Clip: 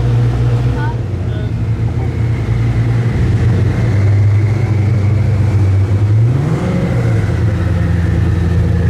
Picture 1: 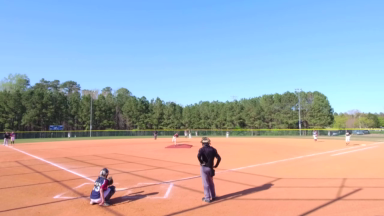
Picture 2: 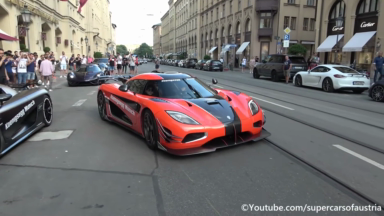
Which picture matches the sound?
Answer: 2